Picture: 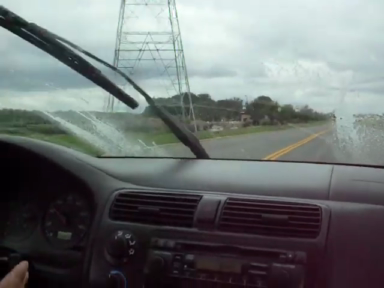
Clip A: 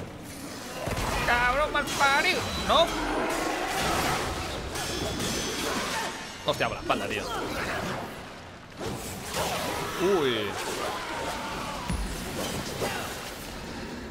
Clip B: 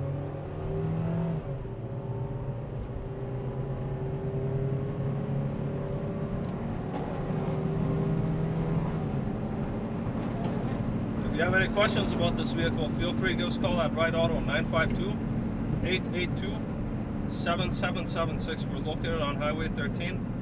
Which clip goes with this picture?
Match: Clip B